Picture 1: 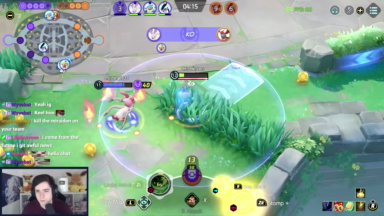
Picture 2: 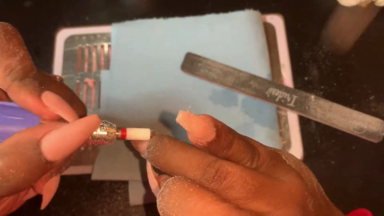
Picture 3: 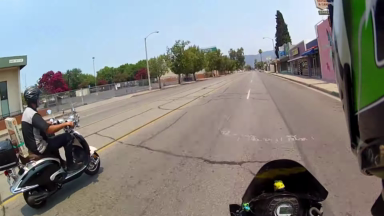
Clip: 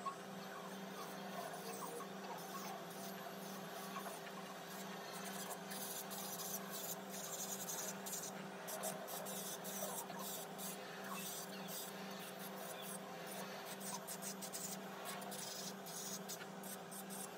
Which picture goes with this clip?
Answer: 2